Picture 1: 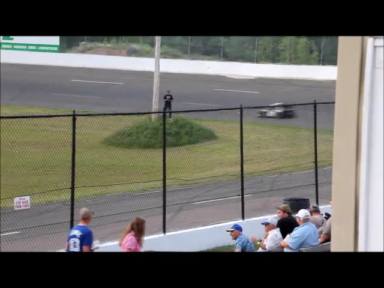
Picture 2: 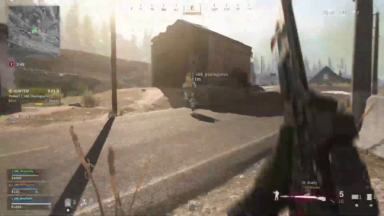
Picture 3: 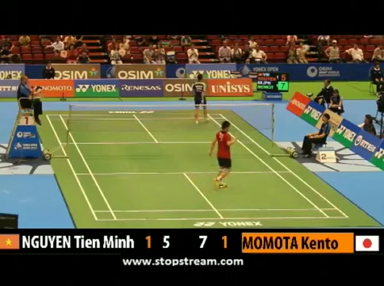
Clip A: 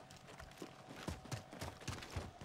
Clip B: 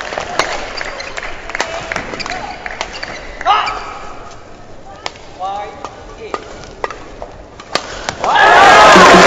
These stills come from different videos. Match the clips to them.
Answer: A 2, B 3